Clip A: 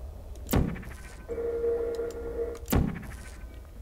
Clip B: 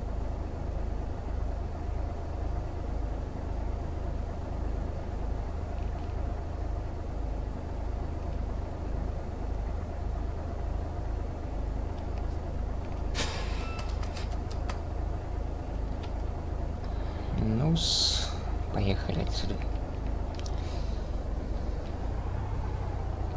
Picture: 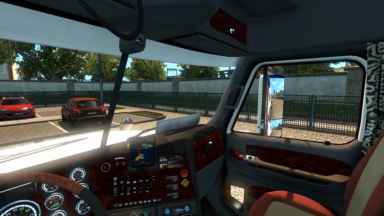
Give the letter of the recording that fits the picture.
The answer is B